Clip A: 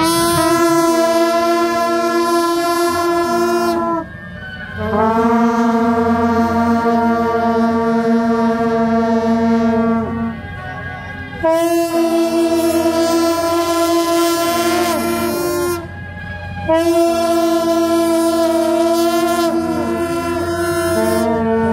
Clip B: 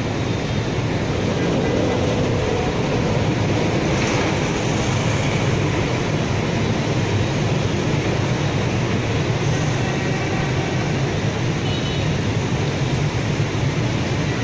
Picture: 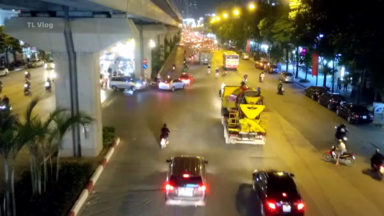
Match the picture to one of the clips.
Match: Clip B